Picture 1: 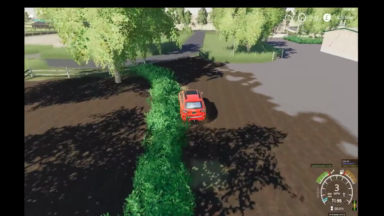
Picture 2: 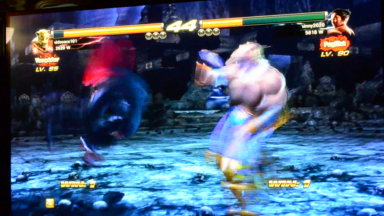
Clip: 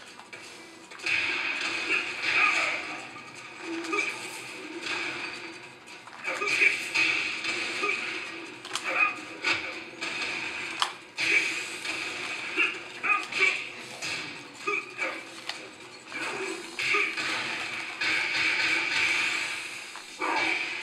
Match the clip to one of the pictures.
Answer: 2